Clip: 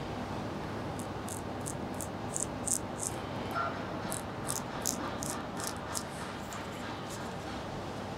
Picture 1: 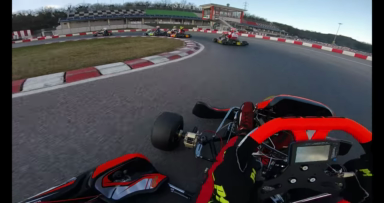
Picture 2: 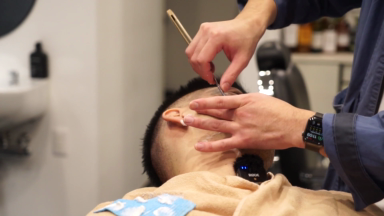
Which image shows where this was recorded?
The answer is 2